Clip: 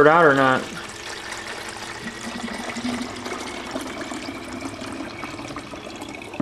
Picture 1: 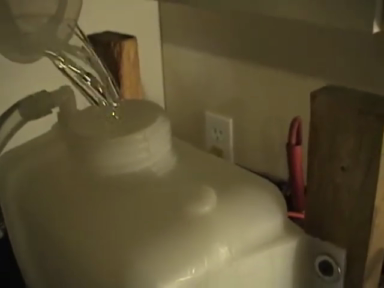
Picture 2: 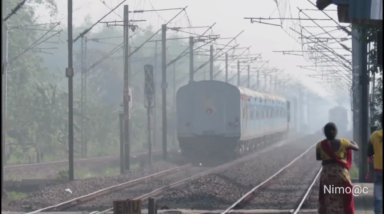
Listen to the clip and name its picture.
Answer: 1